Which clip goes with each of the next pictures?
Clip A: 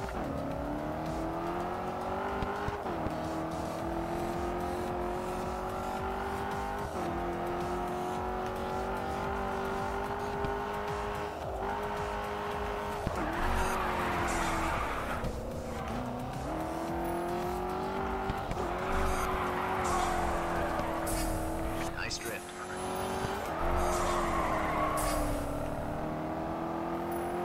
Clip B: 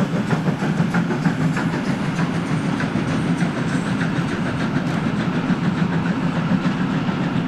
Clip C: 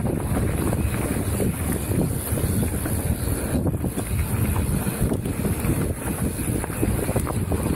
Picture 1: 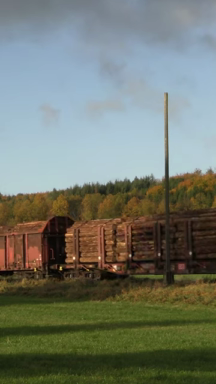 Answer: B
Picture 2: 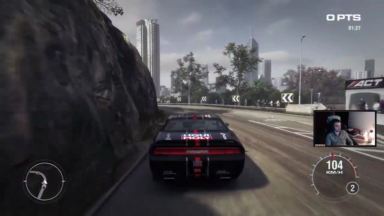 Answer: A